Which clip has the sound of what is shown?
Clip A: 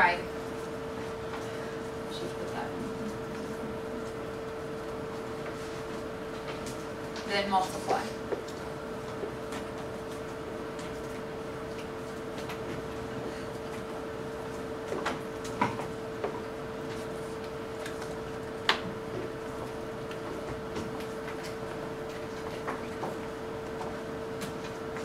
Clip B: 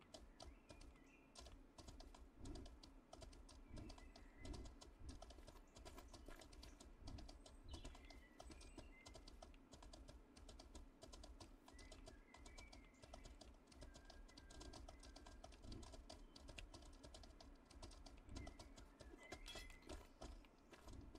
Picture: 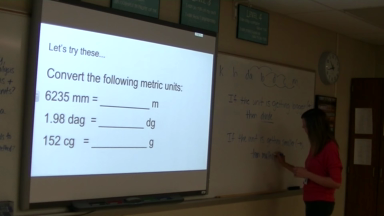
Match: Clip A